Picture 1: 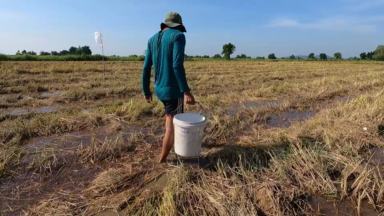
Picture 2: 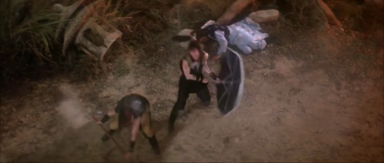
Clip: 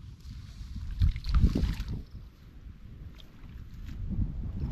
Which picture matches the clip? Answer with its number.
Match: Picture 1